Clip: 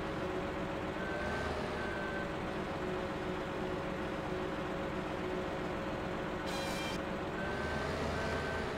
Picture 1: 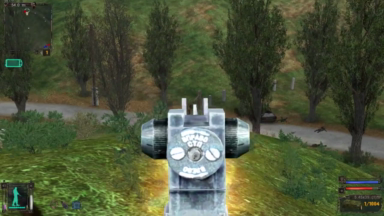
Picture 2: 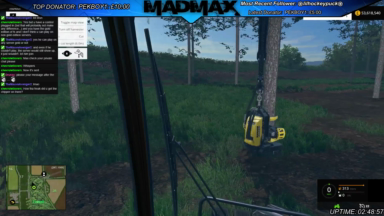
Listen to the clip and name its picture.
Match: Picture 2